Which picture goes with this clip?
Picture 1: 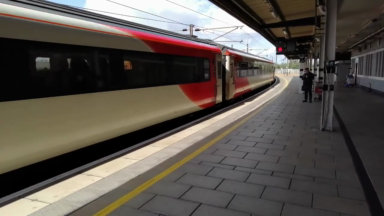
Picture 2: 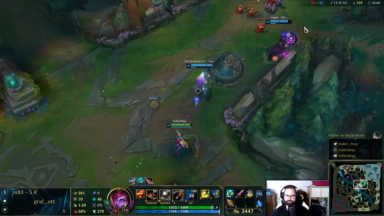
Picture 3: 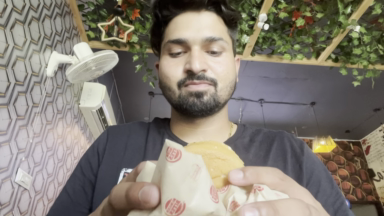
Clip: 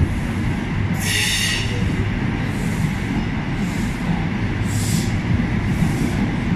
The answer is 1